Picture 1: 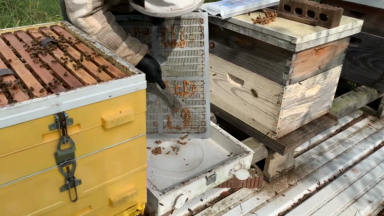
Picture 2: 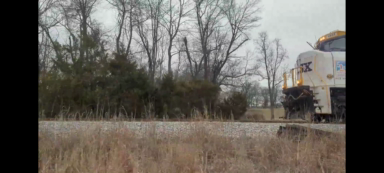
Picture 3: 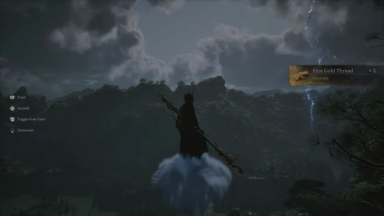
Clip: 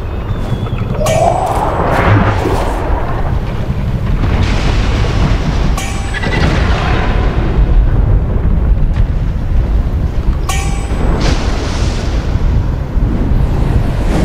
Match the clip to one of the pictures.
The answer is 3